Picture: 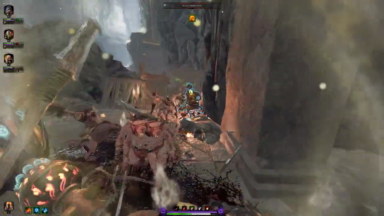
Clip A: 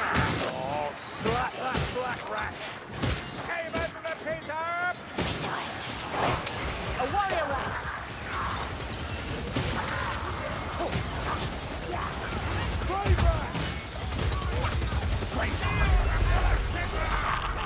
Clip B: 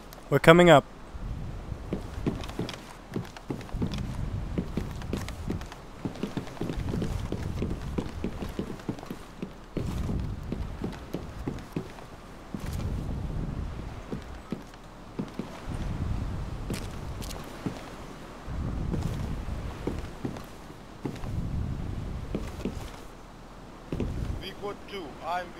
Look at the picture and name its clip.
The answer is A